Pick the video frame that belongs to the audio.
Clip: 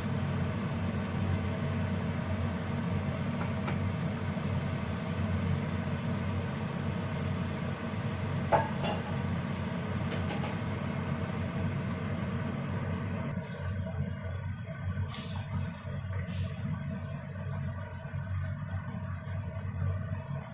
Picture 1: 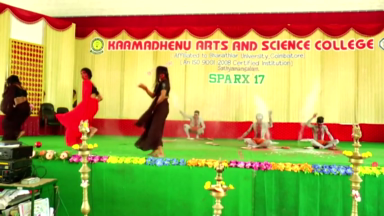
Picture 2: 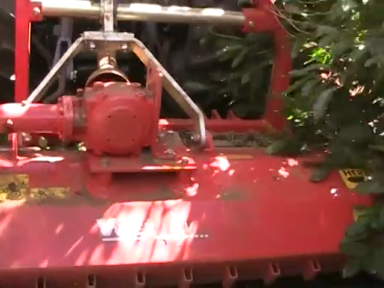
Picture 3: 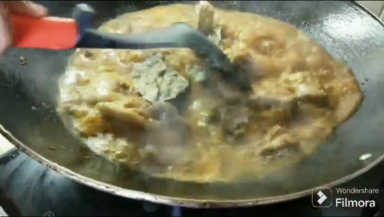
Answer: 3